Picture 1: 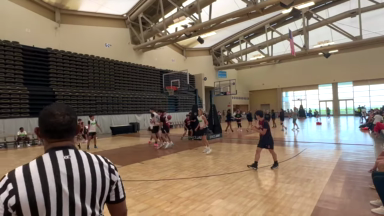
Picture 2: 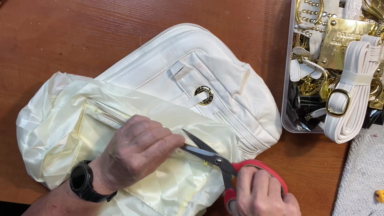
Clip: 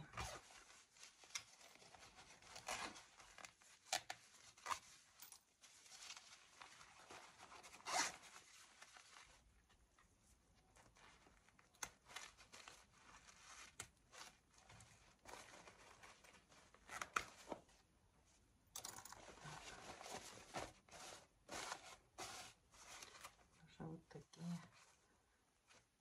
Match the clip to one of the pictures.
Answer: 2